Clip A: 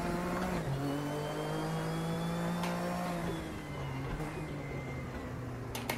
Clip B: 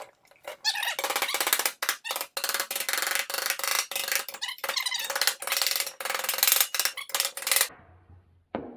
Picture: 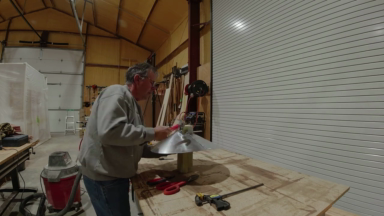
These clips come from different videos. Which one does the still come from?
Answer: B